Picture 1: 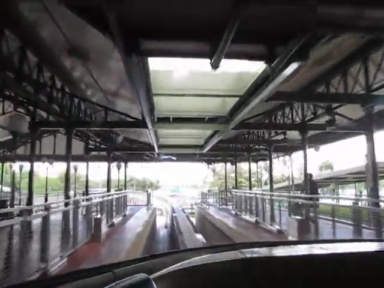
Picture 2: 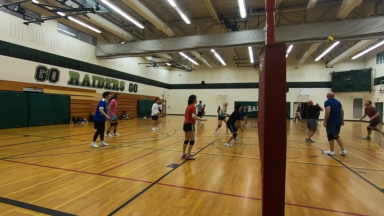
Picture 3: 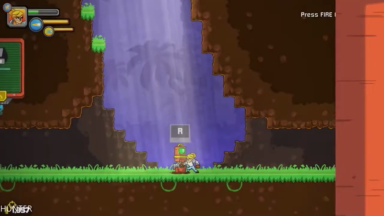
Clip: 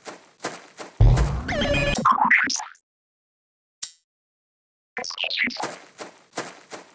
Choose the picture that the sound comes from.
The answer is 3